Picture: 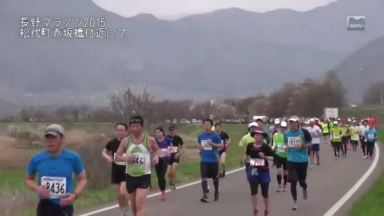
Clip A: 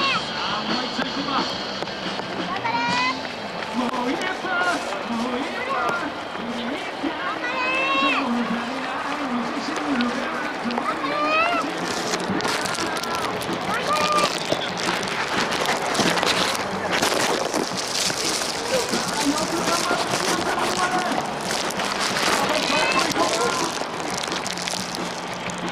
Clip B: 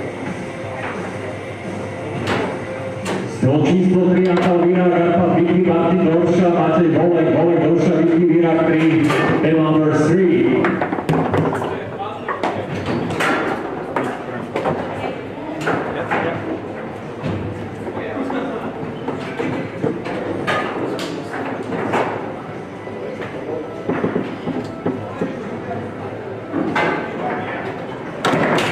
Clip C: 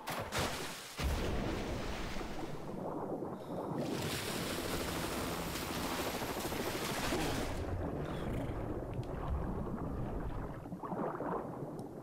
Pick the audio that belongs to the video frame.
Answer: A